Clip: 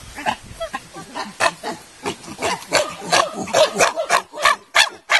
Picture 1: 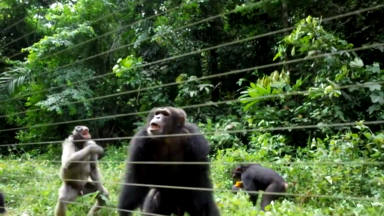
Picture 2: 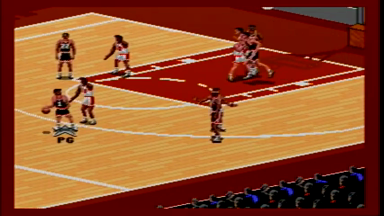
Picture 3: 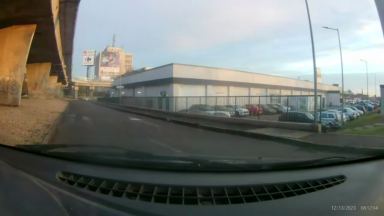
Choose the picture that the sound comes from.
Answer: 1